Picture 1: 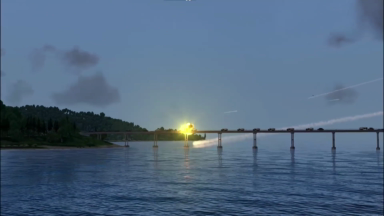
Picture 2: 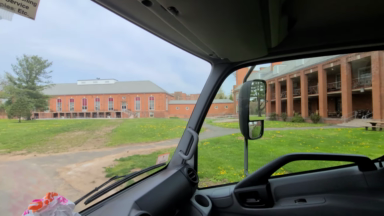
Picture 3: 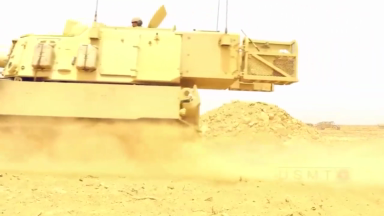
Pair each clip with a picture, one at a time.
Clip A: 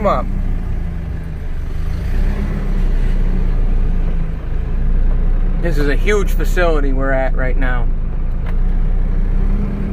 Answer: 2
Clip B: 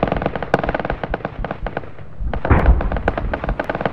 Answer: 1